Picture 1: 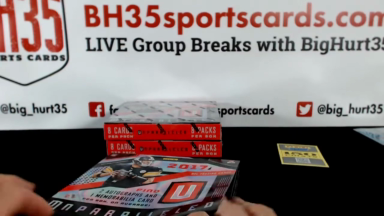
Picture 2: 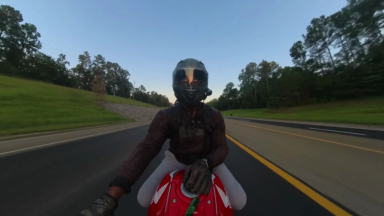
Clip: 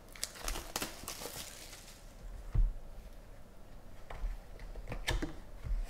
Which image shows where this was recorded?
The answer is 1